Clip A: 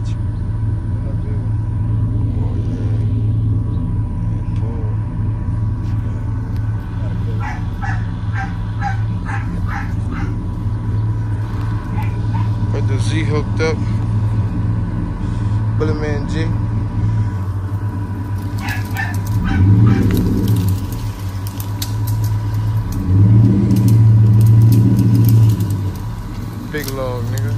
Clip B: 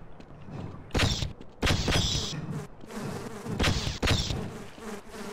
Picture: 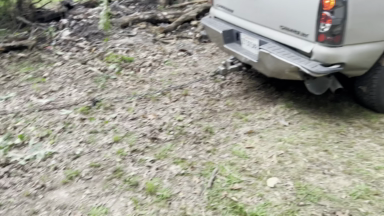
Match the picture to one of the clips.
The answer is A